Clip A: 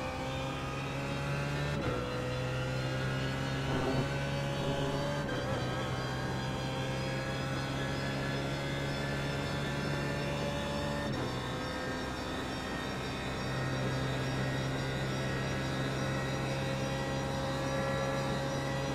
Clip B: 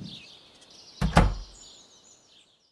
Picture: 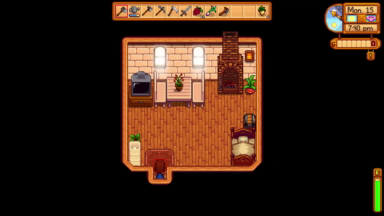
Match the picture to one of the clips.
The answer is B